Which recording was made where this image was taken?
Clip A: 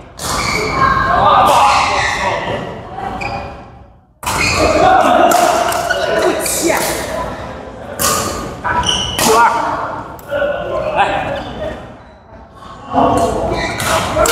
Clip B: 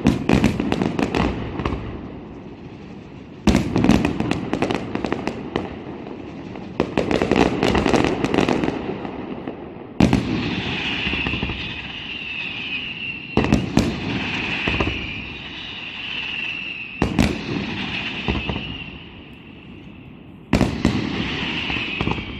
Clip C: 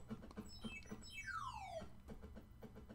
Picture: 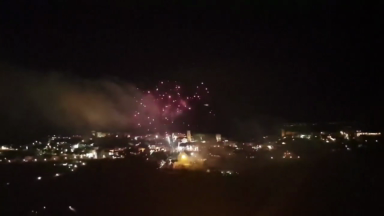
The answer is B